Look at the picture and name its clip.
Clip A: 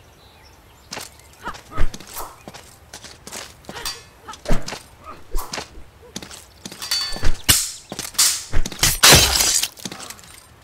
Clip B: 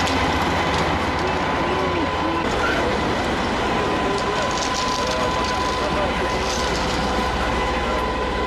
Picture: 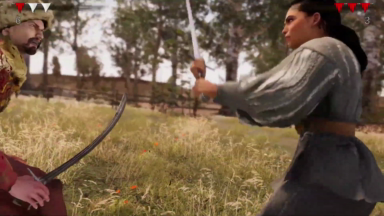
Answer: A